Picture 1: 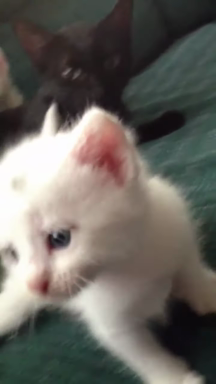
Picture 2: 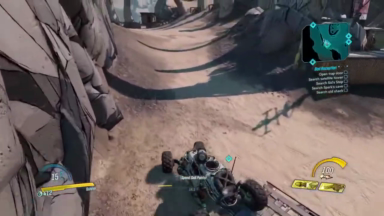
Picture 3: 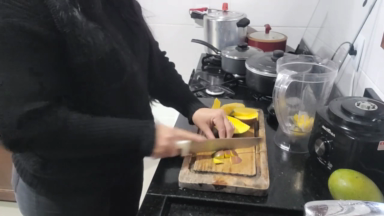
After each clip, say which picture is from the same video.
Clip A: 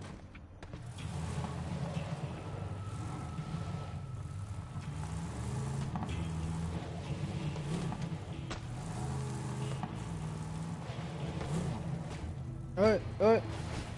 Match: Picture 2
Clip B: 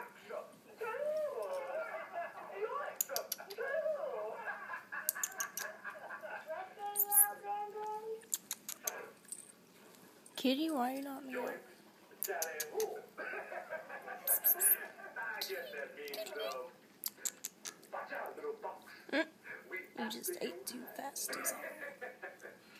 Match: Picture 1